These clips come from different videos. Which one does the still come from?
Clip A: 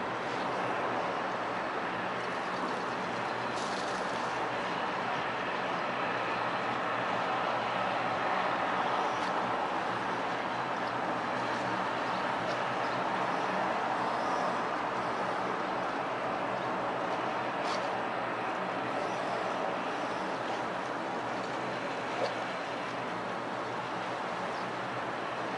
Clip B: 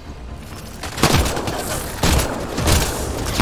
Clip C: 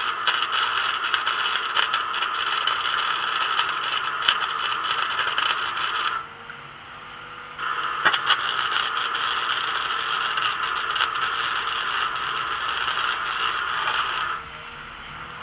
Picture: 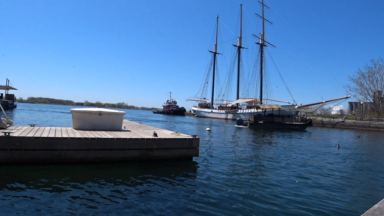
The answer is A